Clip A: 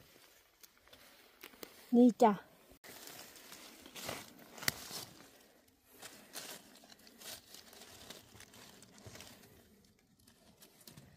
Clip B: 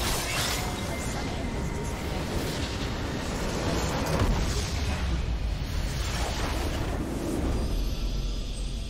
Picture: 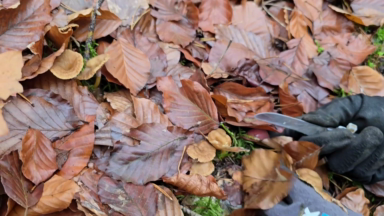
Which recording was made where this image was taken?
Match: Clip A